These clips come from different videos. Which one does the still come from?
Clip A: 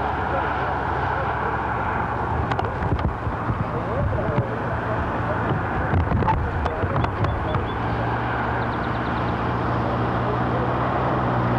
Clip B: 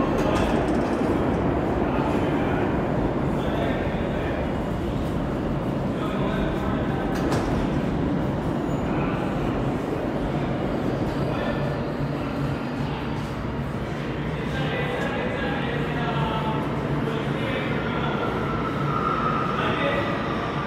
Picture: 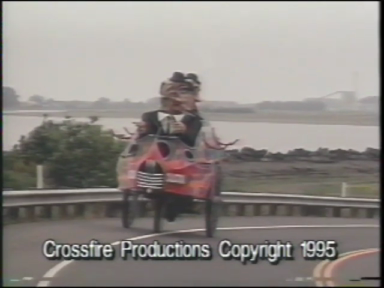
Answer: A